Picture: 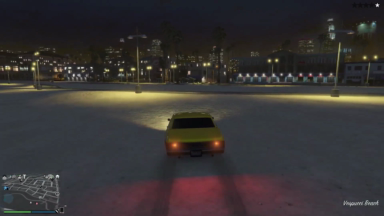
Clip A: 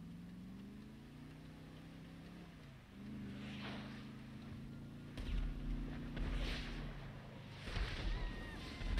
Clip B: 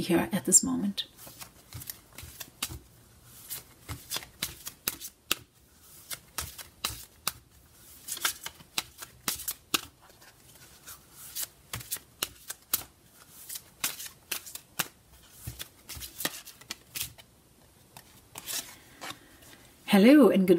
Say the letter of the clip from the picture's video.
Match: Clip A